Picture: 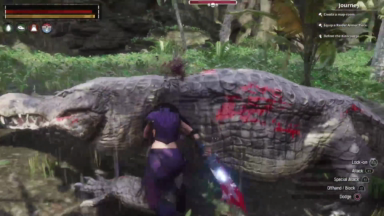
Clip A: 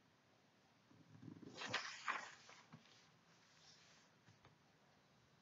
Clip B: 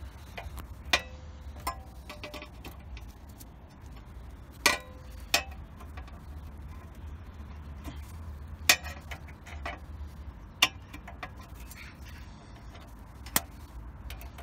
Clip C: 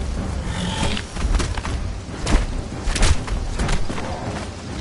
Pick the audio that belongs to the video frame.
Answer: C